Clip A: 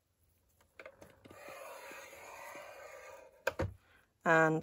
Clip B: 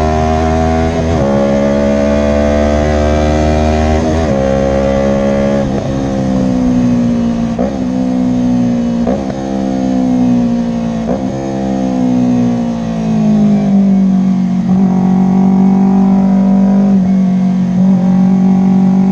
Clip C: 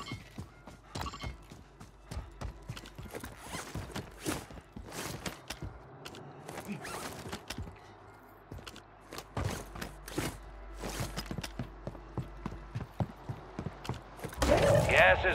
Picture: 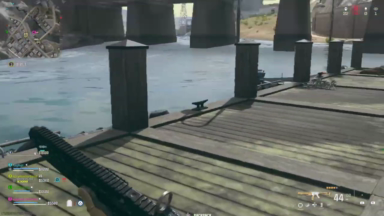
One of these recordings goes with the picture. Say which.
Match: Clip C